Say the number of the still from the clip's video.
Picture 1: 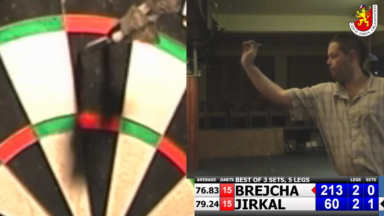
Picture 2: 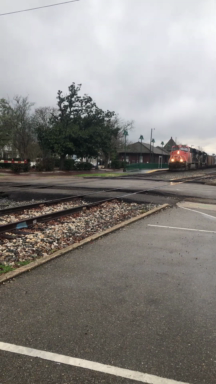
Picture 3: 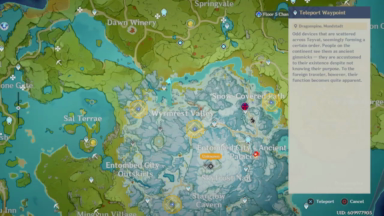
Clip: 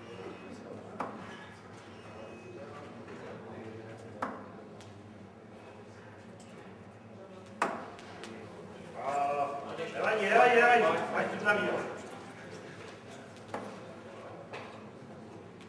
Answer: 1